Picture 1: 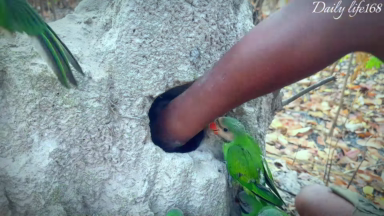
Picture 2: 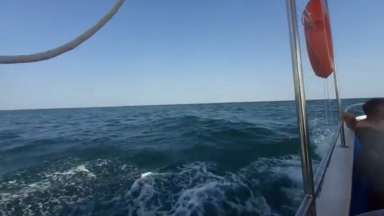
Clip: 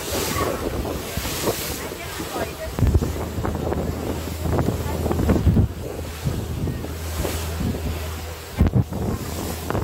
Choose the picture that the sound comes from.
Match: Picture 2